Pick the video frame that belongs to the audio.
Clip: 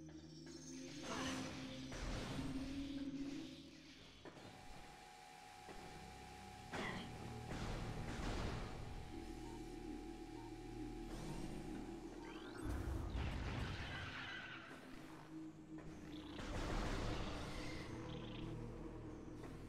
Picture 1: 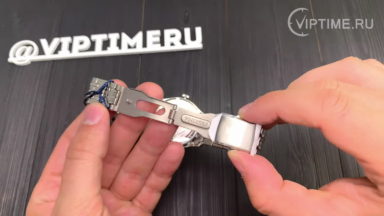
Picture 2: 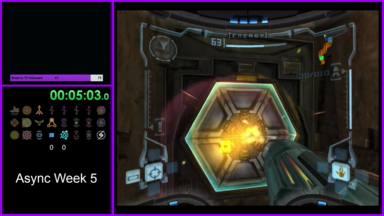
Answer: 2